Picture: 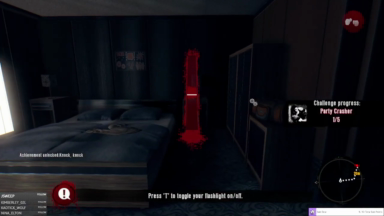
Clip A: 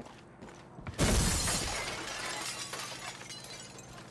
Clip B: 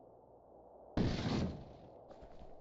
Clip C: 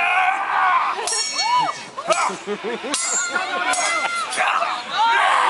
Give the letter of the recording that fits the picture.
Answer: B